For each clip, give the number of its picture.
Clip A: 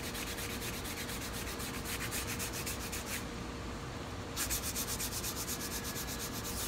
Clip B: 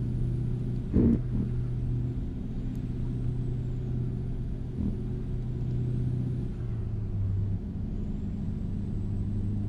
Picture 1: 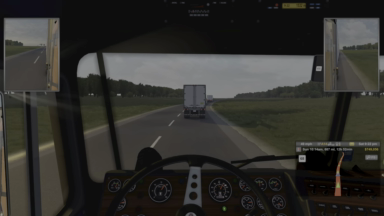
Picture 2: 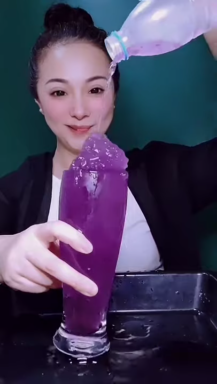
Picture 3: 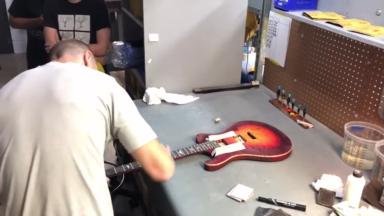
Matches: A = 3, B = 1